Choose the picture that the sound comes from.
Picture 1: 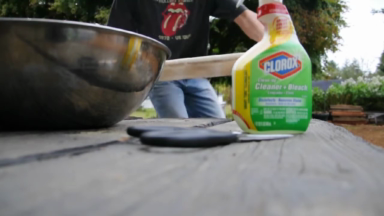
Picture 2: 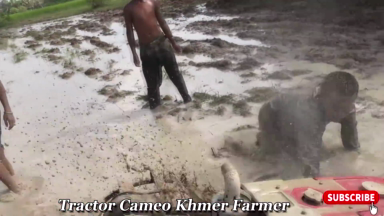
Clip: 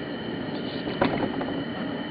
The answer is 1